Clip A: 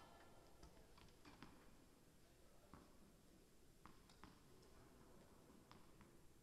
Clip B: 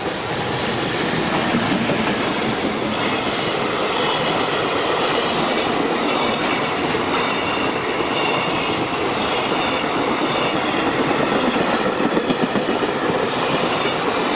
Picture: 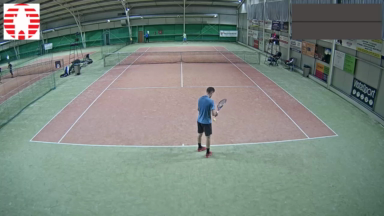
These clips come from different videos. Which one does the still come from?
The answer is A